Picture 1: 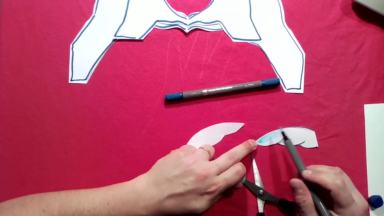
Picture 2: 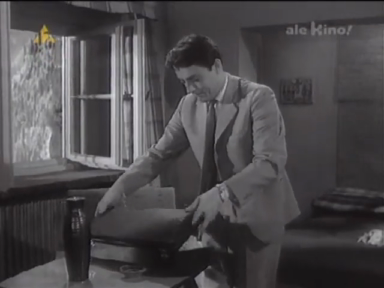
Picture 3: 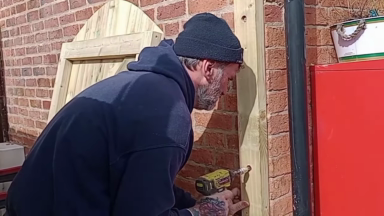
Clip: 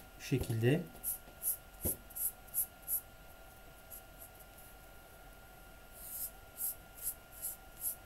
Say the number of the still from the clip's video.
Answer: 1